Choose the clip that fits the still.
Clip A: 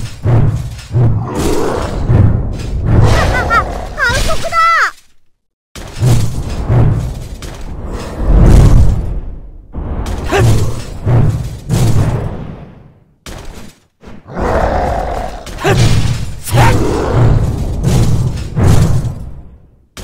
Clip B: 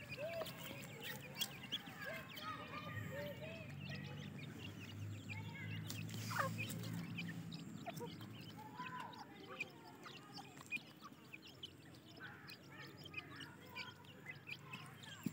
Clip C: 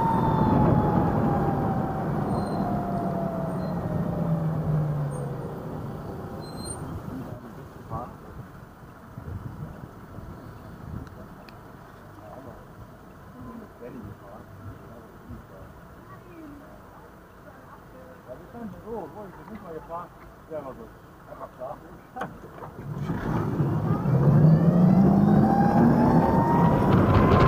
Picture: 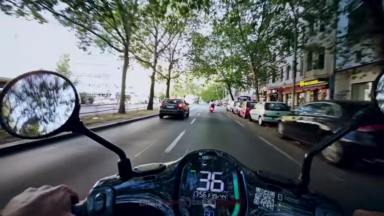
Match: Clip C